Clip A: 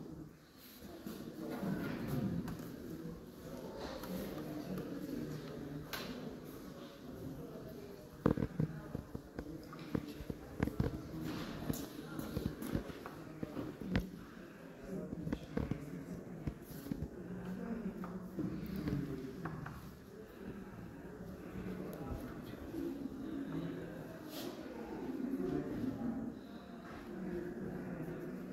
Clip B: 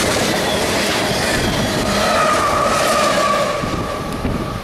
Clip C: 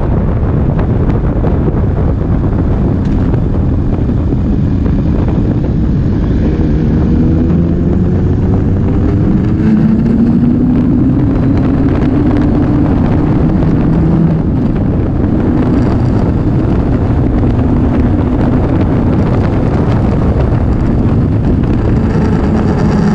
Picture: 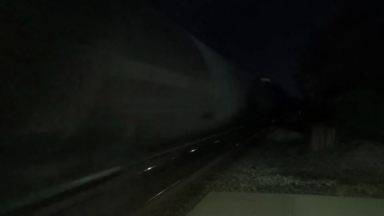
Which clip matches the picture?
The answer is B